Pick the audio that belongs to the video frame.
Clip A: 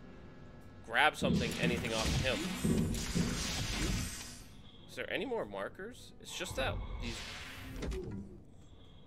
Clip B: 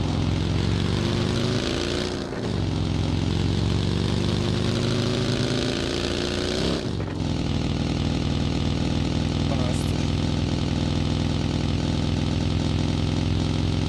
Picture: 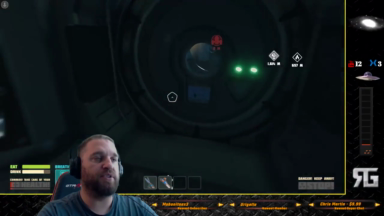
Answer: A